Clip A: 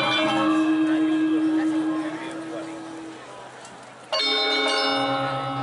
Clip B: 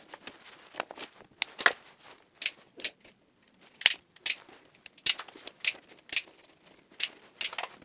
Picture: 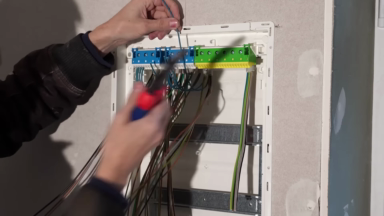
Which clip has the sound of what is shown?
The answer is B